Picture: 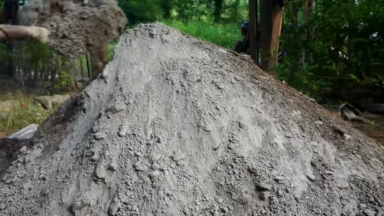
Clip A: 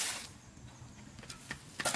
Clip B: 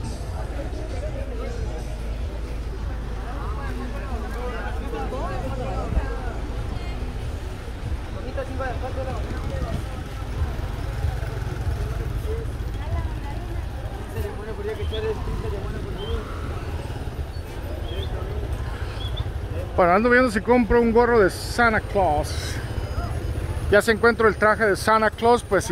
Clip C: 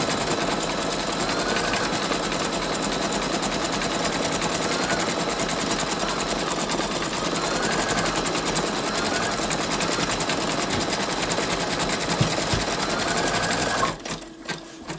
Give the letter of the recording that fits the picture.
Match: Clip A